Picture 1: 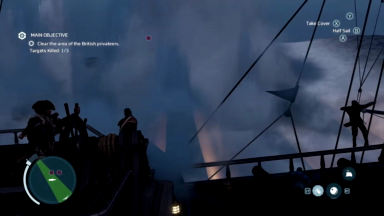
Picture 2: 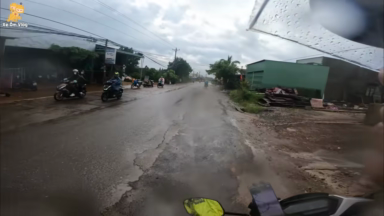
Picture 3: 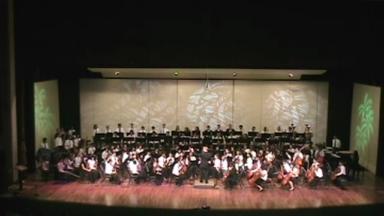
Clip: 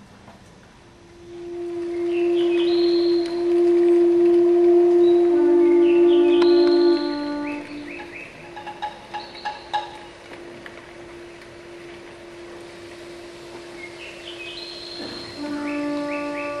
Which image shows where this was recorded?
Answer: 3